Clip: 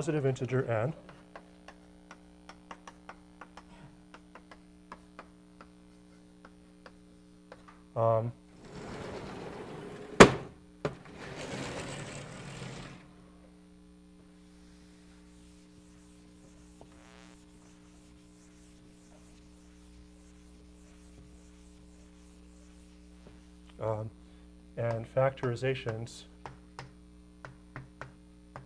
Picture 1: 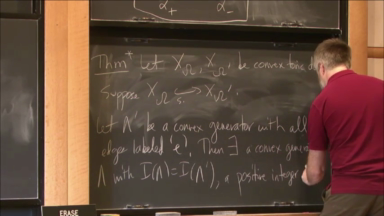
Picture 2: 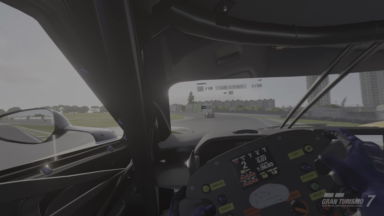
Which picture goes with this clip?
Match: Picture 1